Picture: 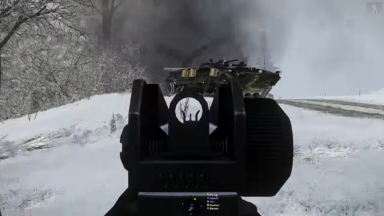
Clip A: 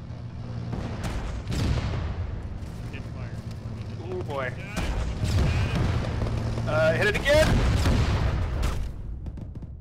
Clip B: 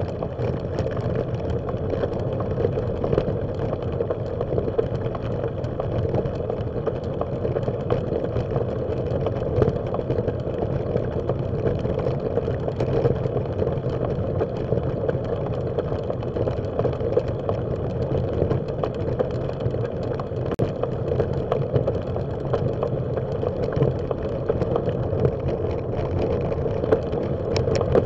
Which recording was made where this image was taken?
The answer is A